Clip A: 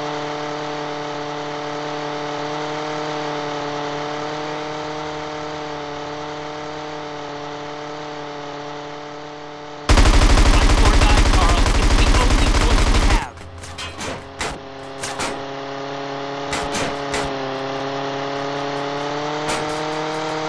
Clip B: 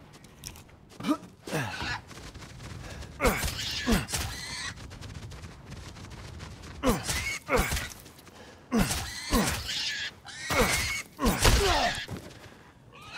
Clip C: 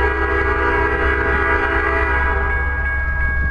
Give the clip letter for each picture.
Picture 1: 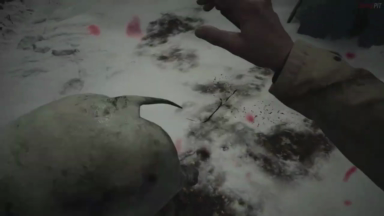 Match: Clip B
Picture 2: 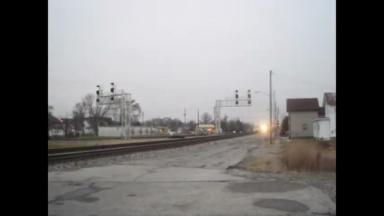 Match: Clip C